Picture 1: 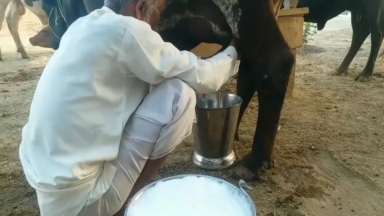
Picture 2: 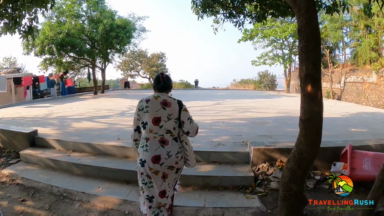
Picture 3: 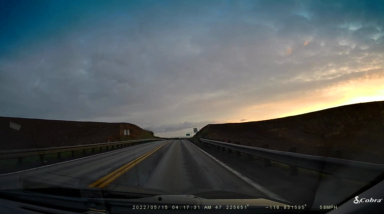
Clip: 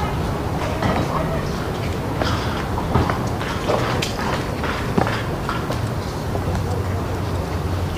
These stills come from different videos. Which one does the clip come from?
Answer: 2